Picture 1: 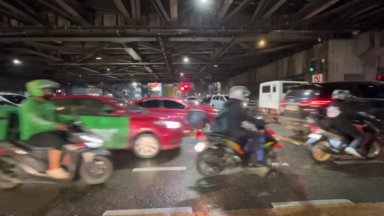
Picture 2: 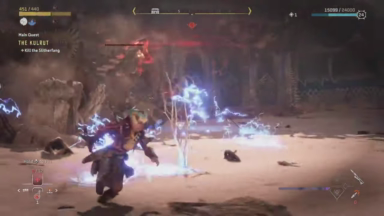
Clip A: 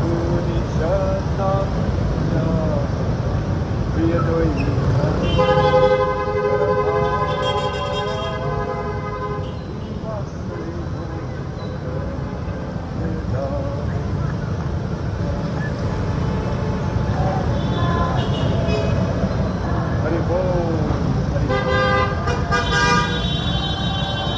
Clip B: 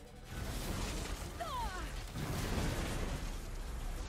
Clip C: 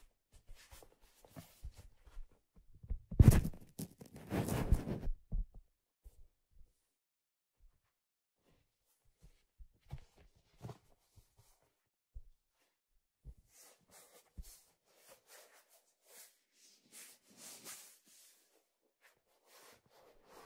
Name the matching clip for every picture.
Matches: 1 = A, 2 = B